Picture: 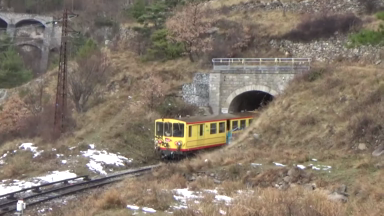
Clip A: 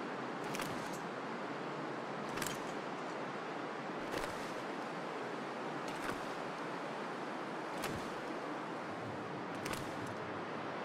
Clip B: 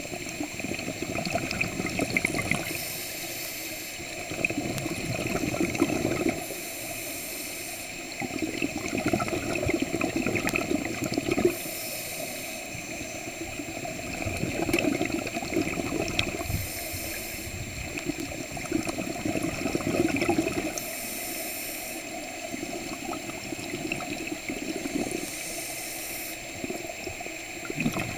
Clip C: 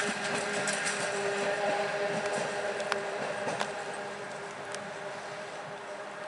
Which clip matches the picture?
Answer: C